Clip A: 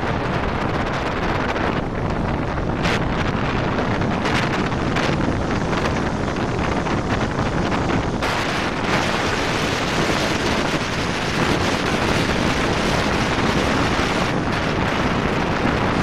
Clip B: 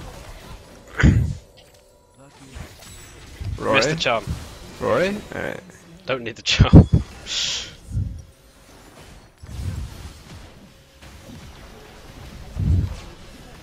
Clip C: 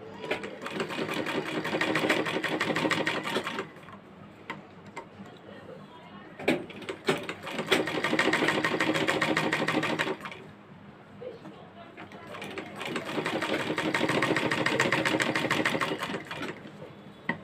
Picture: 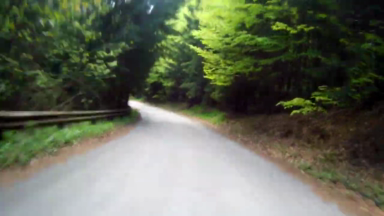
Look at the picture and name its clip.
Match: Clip A